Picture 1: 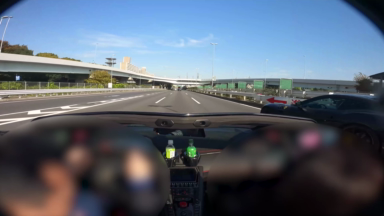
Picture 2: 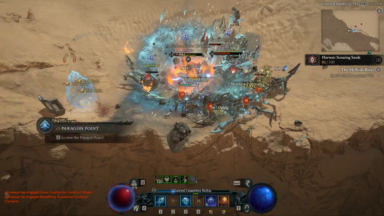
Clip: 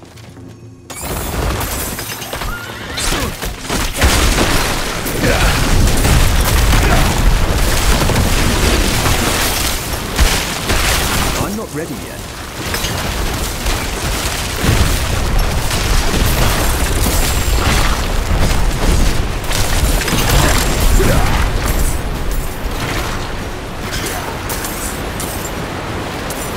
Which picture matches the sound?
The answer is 2